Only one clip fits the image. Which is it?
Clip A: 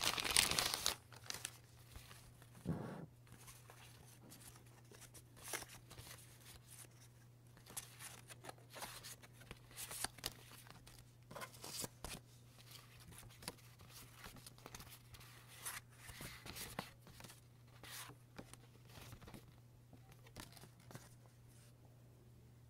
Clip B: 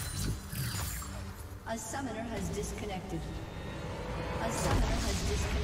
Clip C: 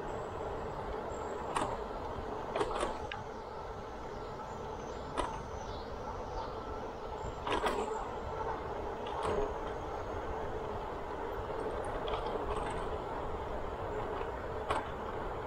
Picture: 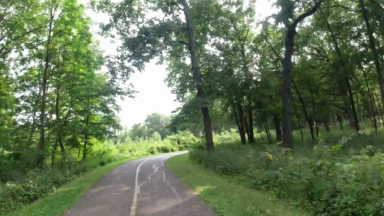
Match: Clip C